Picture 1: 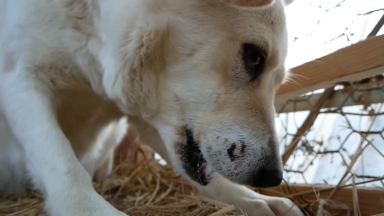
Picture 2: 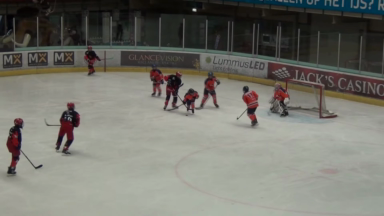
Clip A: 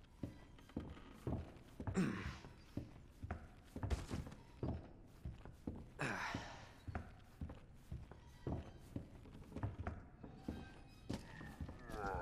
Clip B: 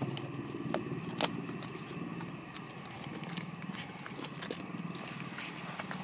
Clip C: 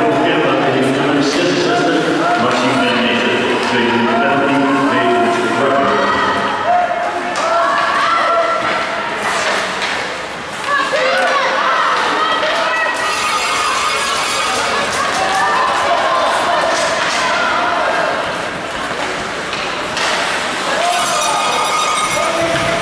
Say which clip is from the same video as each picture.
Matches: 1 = B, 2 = C